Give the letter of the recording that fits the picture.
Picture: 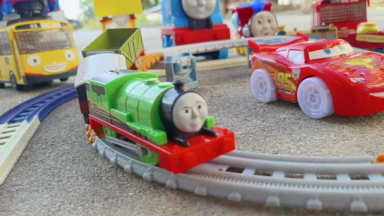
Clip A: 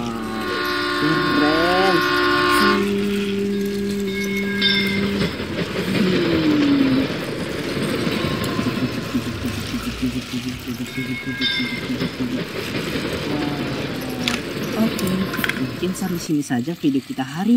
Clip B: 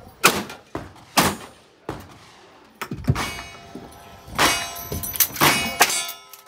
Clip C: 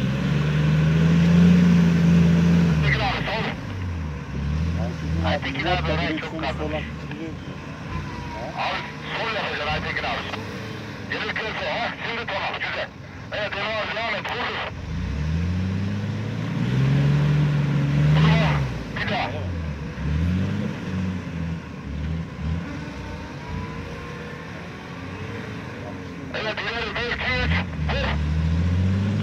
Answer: A